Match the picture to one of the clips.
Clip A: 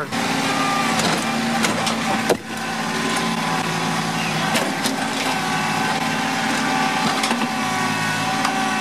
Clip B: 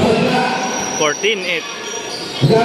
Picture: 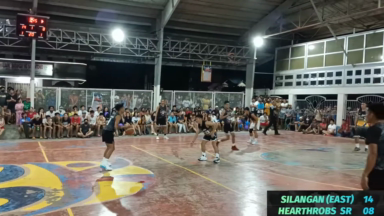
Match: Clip B